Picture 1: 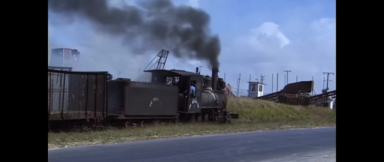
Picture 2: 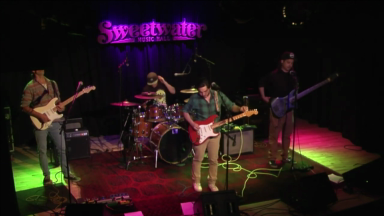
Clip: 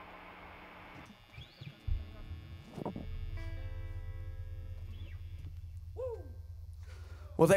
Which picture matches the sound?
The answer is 2